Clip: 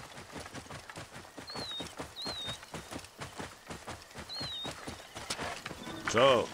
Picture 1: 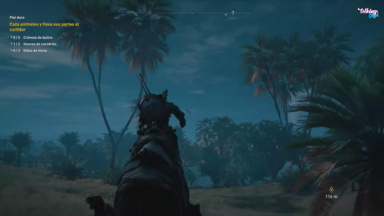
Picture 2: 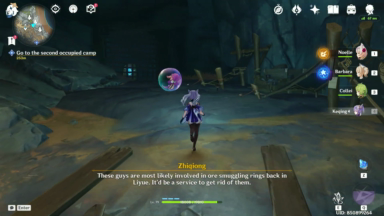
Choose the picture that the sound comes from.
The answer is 1